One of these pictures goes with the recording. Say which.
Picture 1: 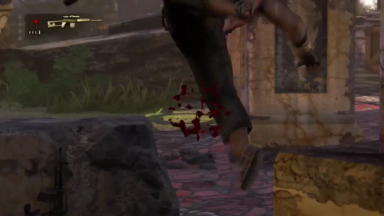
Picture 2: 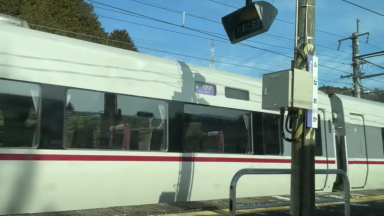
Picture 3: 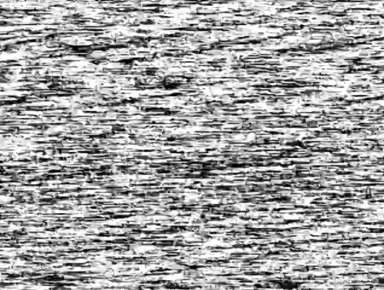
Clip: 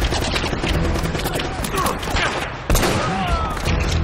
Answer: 1